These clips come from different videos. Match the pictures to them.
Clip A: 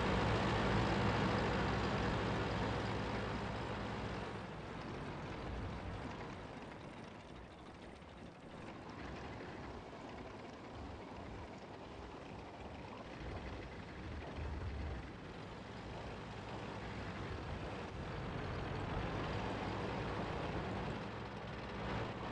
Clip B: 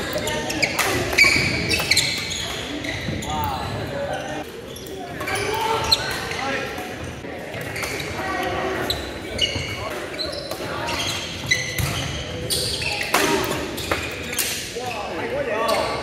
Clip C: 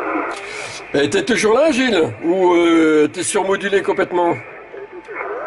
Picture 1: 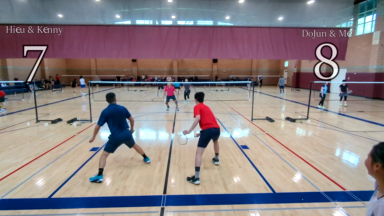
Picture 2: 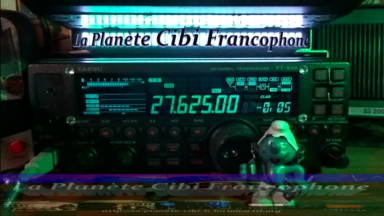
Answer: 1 B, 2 C